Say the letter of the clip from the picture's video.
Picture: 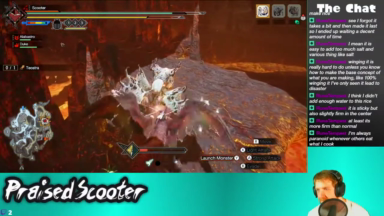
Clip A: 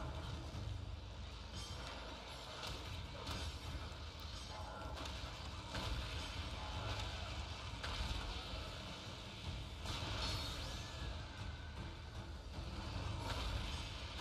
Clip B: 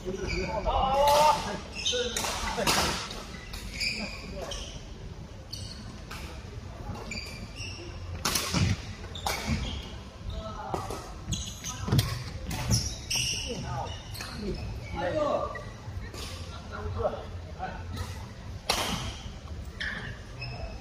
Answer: A